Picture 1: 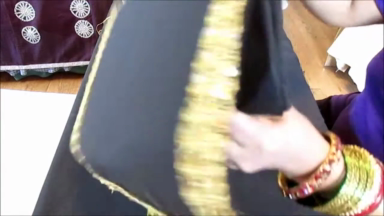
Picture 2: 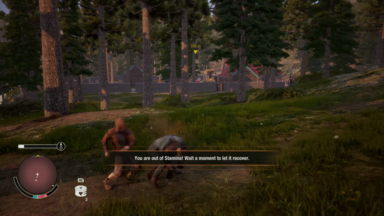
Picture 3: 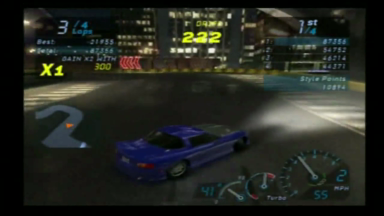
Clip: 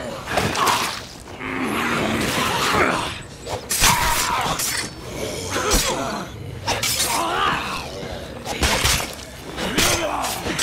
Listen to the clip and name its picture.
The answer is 2